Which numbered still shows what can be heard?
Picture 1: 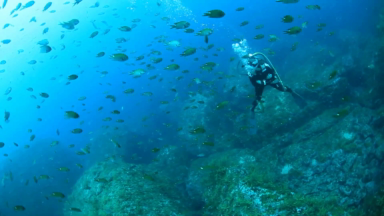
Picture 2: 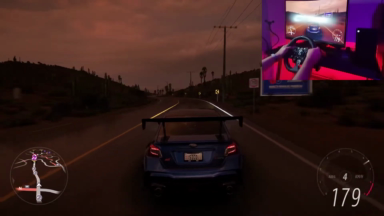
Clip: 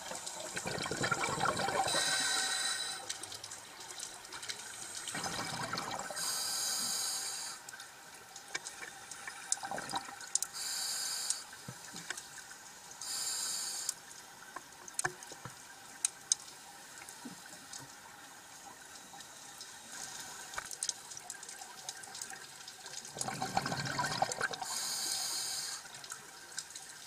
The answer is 1